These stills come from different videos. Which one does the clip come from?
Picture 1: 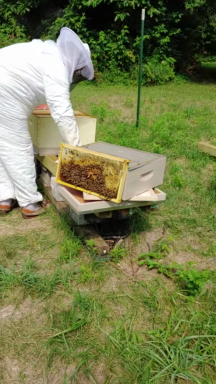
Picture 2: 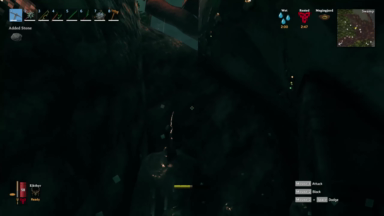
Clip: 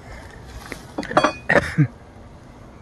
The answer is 1